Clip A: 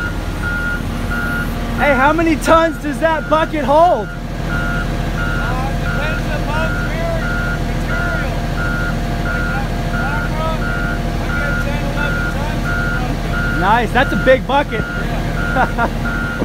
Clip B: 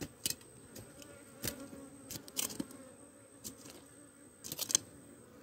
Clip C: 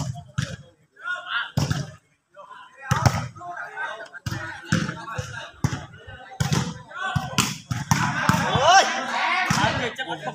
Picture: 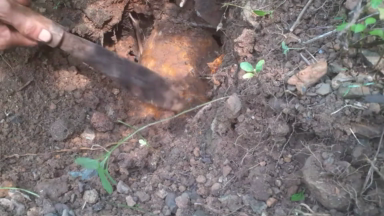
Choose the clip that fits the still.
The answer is B